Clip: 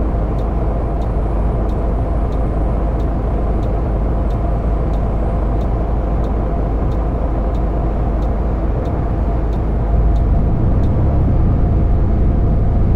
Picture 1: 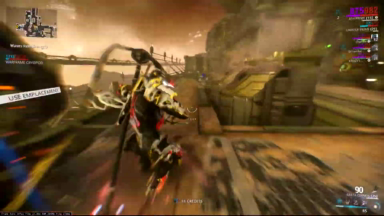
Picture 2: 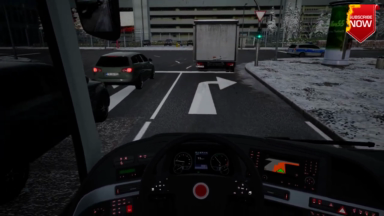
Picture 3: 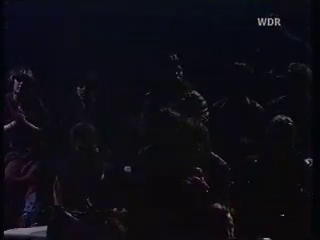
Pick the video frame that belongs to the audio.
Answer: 2